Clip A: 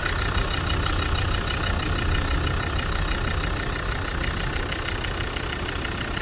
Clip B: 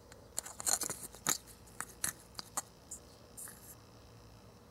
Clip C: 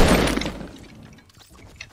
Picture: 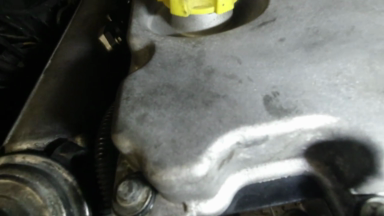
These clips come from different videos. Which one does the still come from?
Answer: A